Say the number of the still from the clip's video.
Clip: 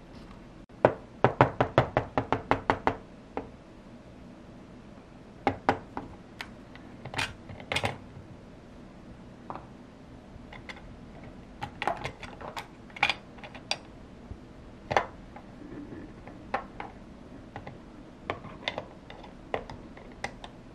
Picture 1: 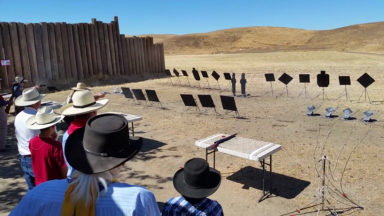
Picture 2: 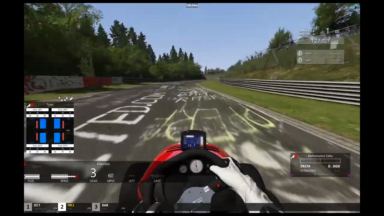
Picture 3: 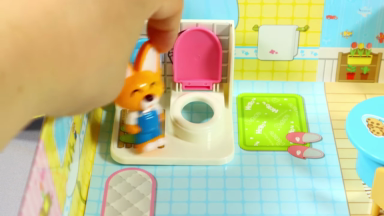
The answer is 3